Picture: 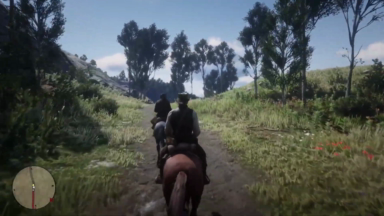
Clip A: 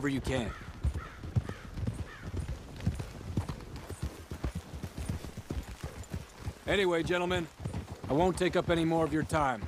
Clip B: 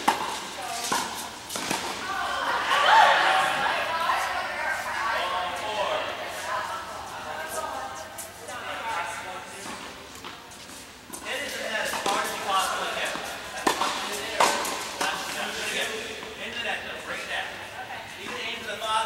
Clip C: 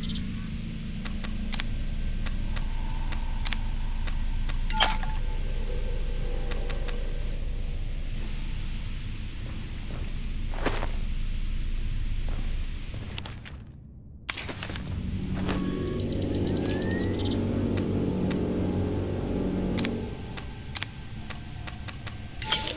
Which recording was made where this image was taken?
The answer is A